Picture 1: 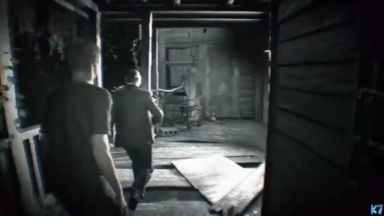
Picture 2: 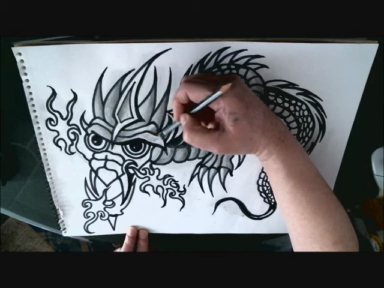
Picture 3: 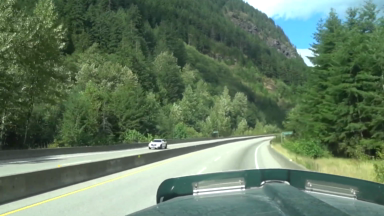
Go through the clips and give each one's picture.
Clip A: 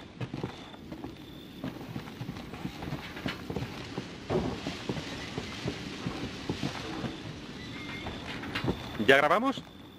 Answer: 1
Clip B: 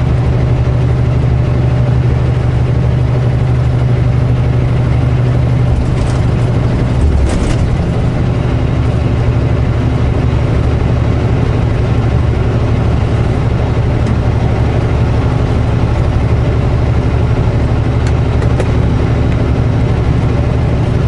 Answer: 3